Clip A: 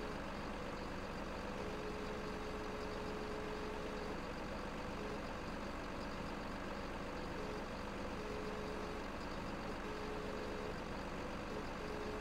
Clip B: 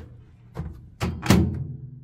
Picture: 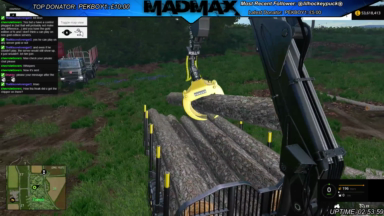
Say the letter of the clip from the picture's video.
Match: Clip A